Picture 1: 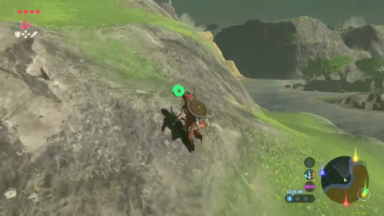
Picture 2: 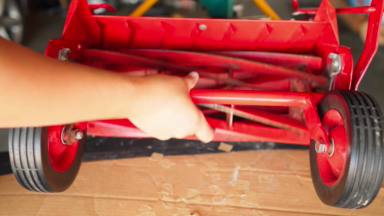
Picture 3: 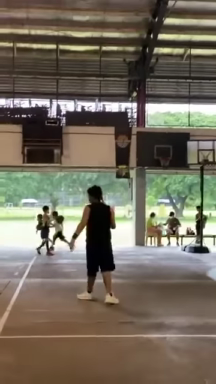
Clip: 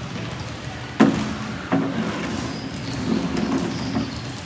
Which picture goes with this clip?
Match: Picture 3